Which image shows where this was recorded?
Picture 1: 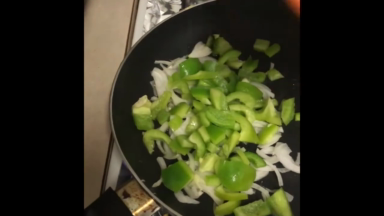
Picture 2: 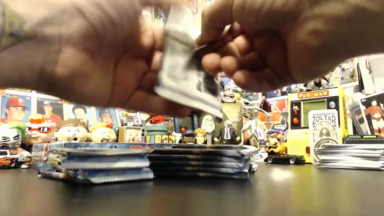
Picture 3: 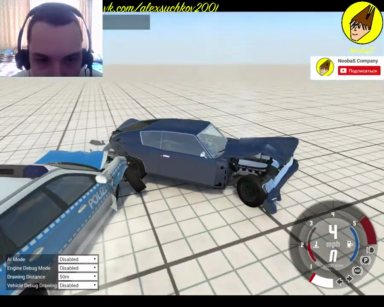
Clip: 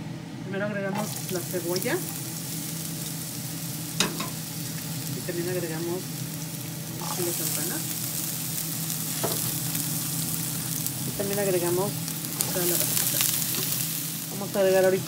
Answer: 1